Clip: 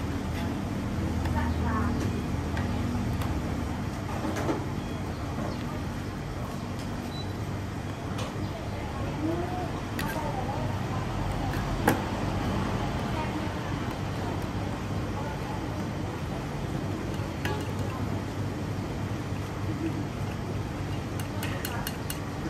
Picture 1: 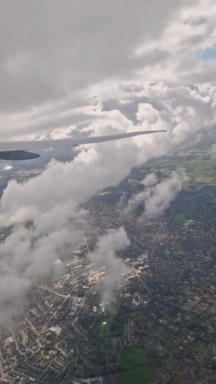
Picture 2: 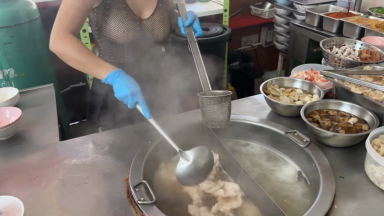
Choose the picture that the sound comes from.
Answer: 2